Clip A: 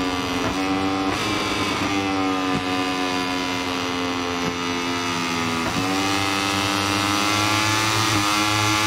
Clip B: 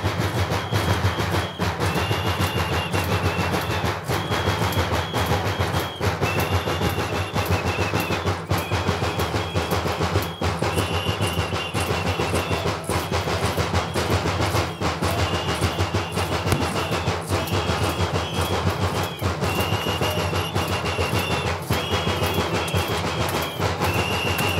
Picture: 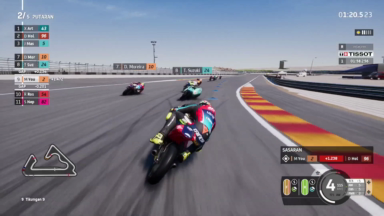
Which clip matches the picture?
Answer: A